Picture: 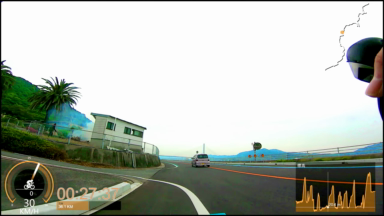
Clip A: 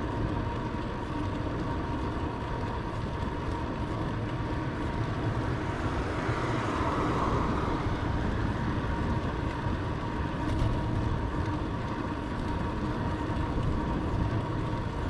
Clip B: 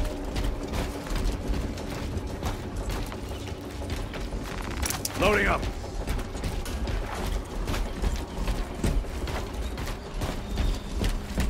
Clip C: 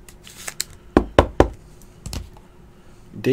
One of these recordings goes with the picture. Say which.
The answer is A